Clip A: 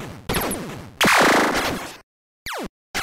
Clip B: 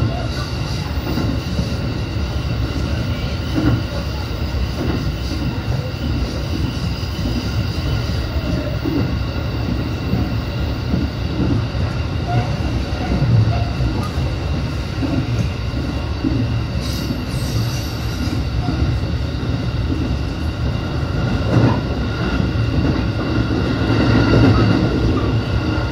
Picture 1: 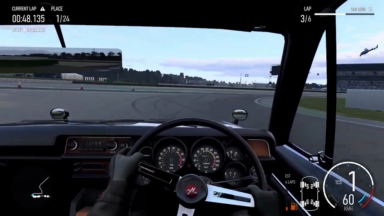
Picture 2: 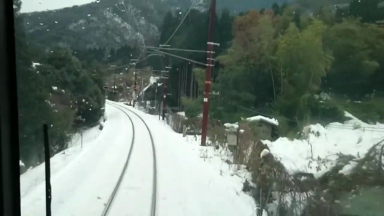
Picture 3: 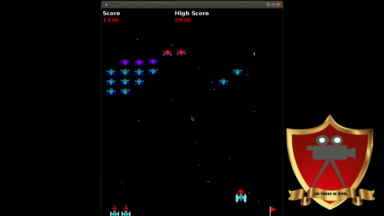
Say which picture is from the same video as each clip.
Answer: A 3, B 2